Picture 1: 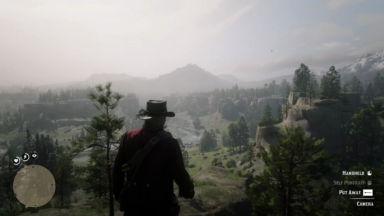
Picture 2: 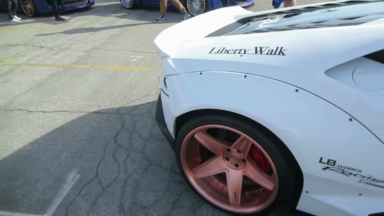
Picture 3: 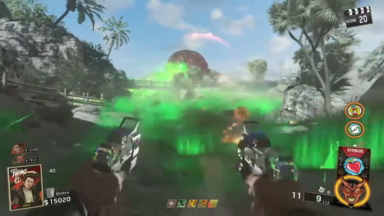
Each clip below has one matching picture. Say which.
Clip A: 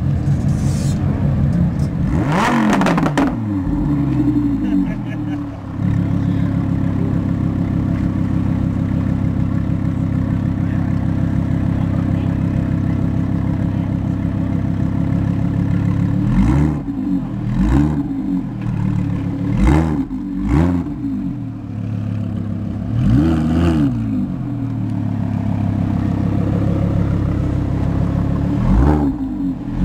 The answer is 2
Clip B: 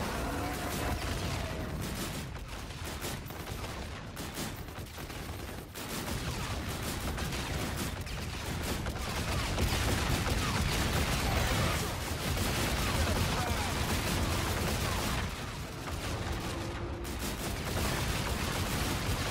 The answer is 3